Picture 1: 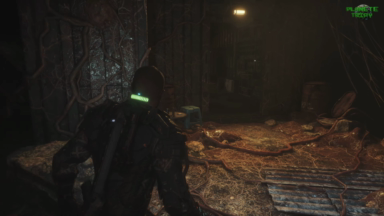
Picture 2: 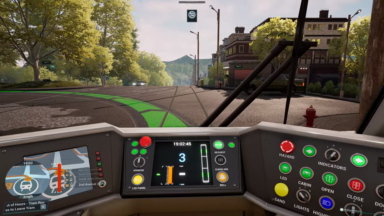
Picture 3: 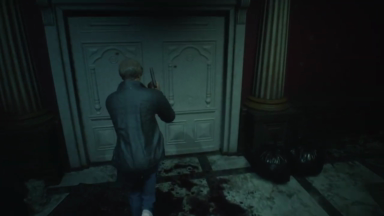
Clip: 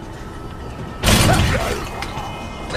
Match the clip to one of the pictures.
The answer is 3